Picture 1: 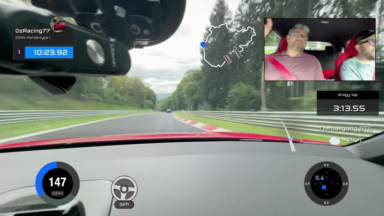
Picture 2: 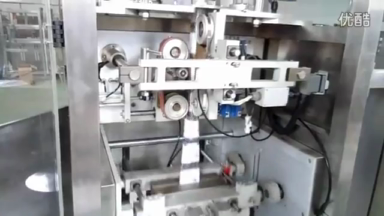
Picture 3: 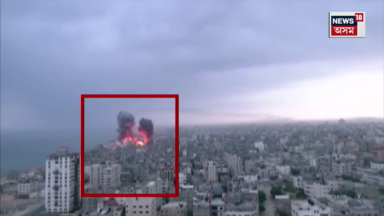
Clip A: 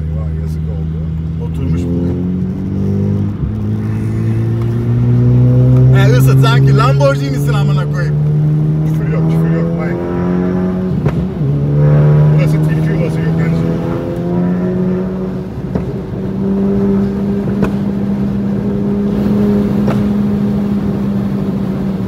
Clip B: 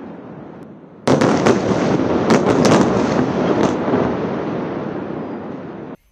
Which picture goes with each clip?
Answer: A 1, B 3